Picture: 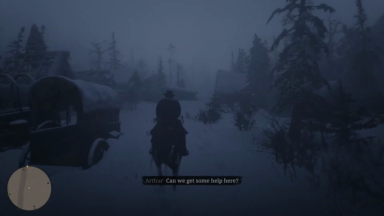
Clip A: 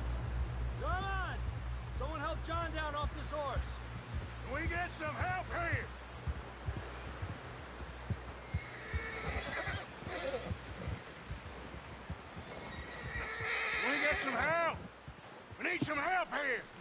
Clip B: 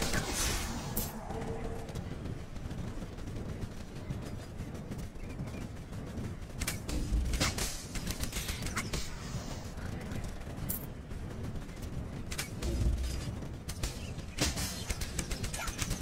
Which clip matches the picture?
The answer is A